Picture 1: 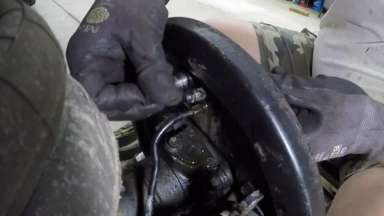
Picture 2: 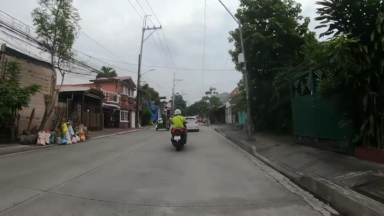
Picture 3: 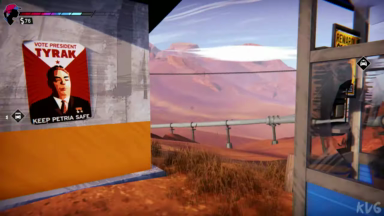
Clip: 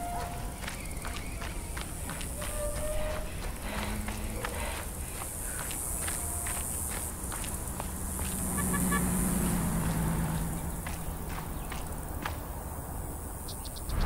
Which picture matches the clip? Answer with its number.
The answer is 3